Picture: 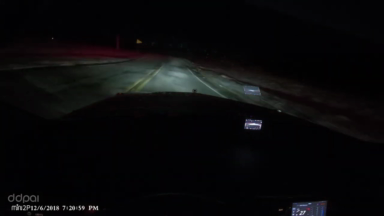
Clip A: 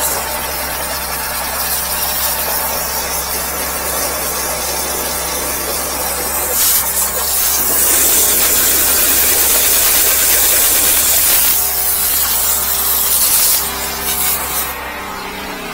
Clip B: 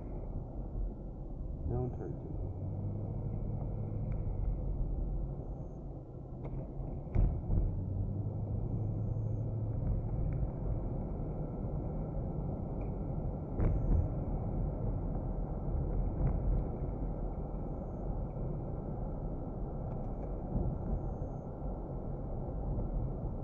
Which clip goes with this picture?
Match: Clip B